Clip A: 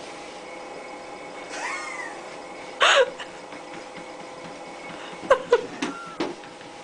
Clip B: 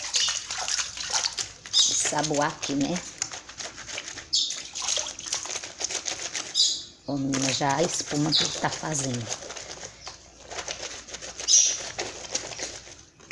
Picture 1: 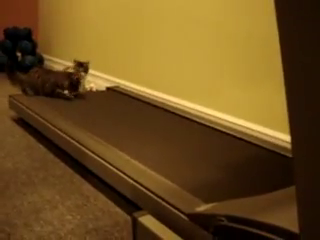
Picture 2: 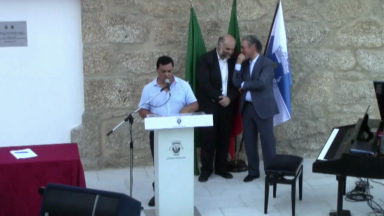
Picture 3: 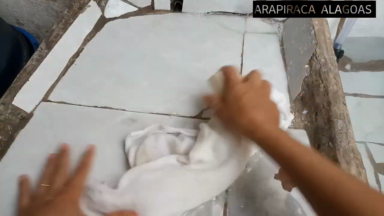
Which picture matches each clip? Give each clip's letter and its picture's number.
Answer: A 1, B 3